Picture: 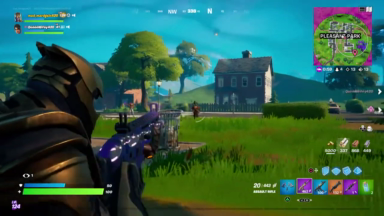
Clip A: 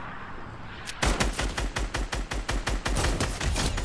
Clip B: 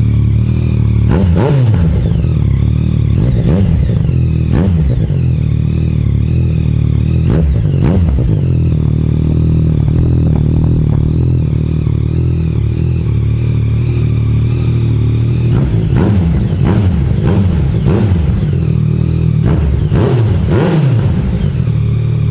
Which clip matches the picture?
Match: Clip A